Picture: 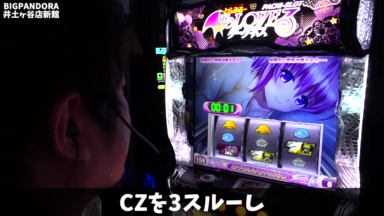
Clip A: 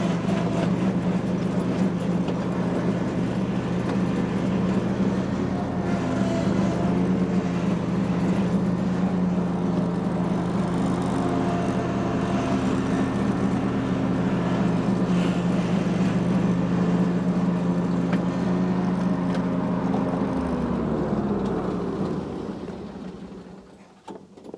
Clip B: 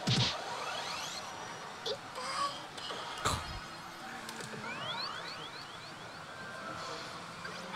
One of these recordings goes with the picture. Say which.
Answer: B